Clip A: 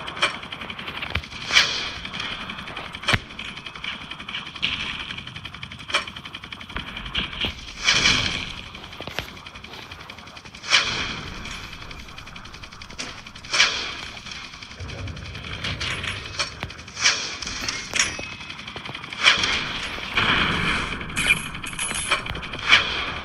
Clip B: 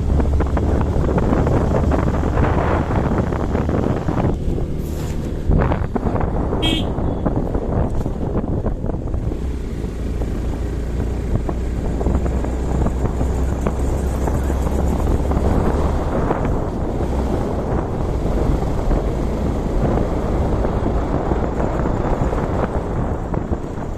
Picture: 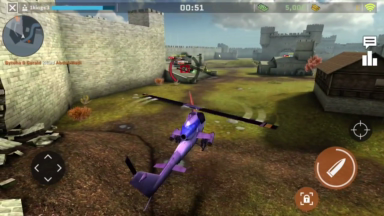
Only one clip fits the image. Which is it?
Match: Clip A